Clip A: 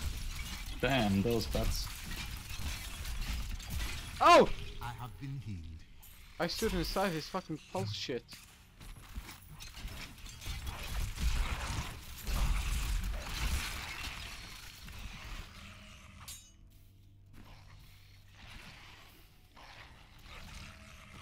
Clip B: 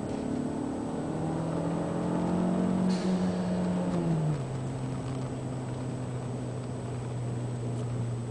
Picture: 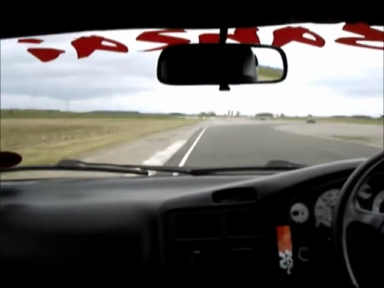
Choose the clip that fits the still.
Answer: B